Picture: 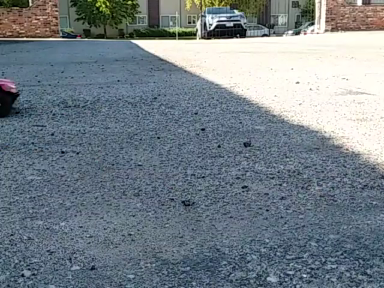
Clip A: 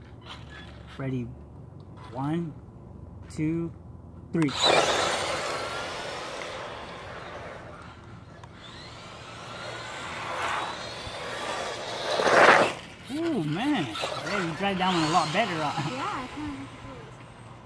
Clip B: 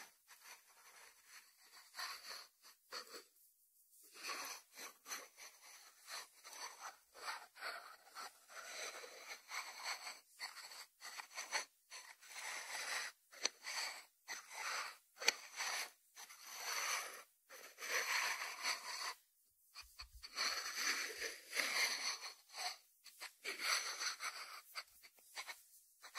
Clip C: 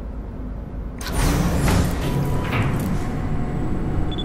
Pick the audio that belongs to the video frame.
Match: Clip A